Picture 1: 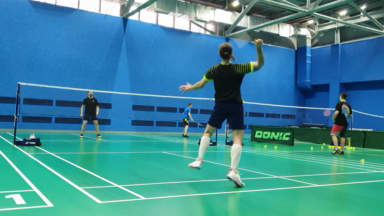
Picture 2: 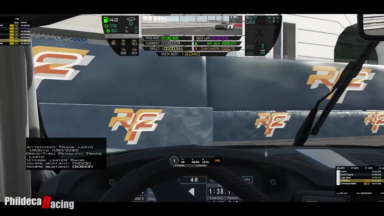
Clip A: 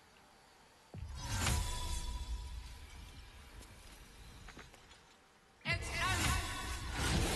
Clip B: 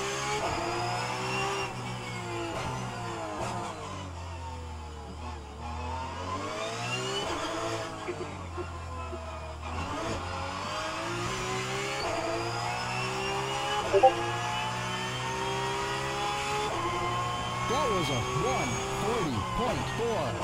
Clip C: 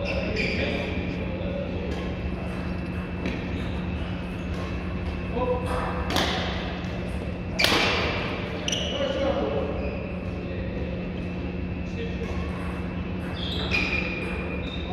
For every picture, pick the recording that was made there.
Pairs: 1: C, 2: B